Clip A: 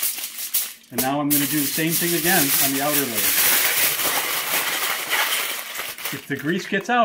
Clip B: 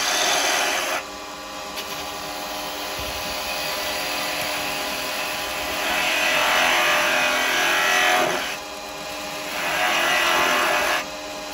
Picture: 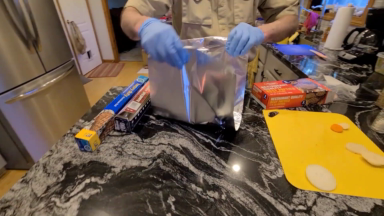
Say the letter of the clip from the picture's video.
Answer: A